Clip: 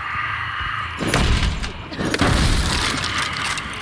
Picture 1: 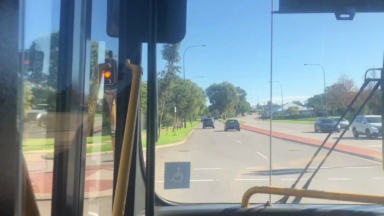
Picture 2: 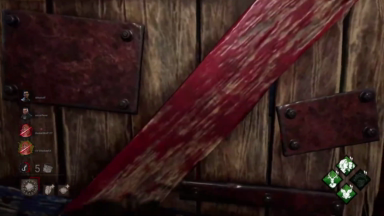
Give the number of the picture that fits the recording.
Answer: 2